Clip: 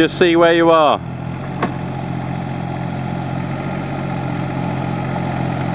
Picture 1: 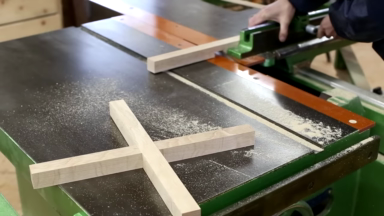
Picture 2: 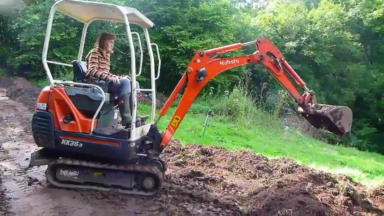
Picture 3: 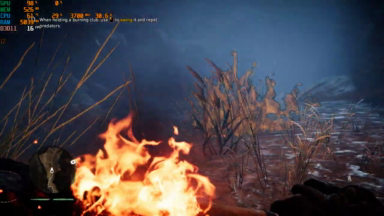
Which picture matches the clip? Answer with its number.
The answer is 2